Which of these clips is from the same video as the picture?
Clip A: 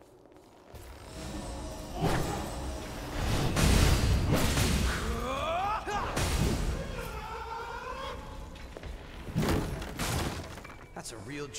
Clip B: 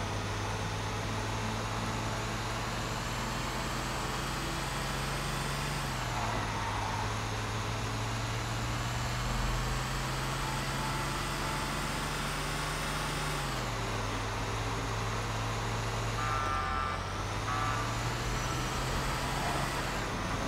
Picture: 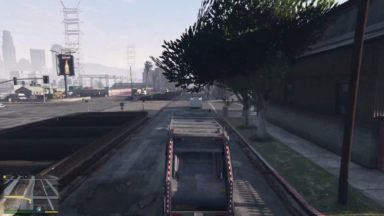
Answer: B